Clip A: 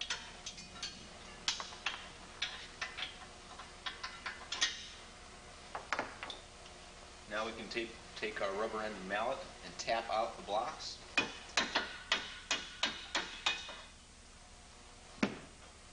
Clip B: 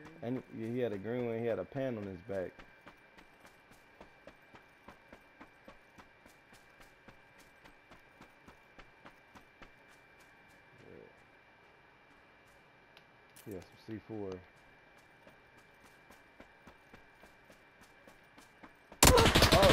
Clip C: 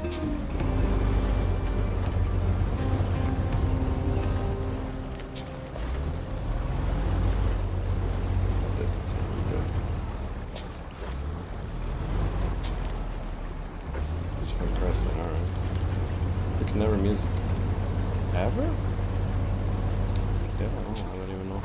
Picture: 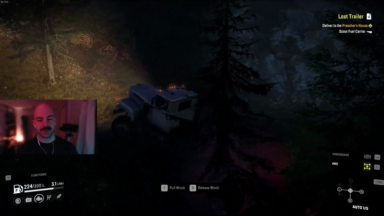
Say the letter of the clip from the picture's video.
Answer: C